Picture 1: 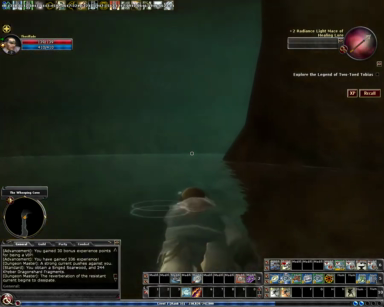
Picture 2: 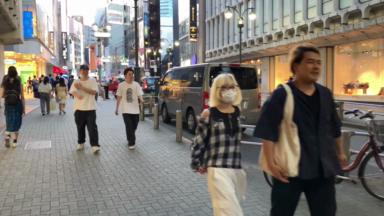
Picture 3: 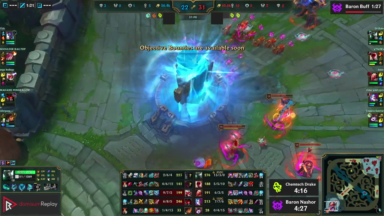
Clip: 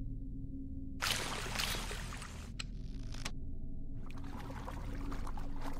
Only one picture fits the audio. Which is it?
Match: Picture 1